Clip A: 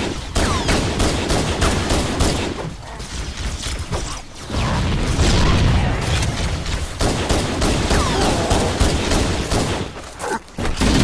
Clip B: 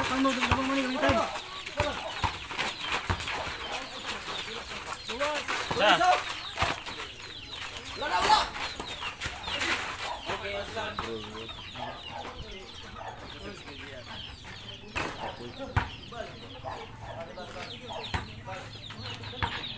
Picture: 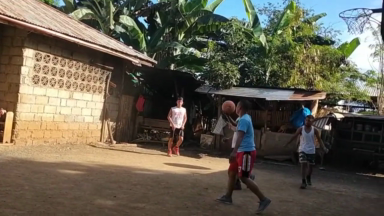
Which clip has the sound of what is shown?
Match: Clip B